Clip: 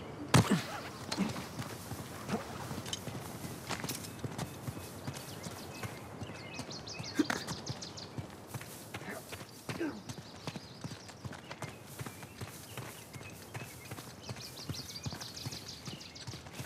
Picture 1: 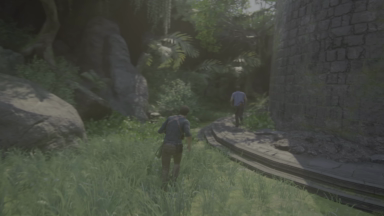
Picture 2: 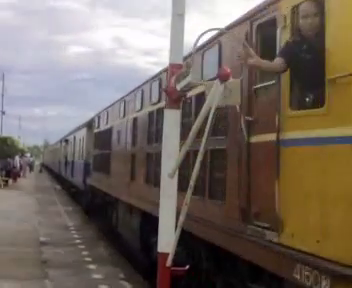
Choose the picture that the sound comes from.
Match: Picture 1